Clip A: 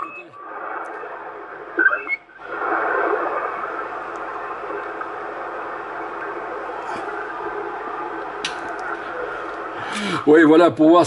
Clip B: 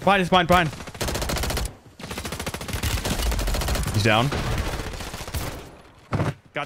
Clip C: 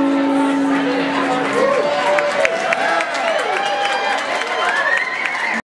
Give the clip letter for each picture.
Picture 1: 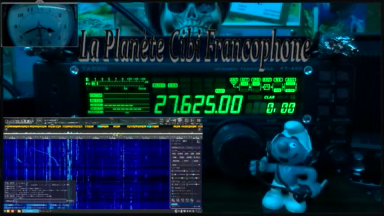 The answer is A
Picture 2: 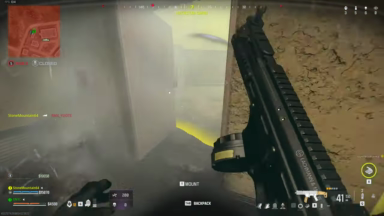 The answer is B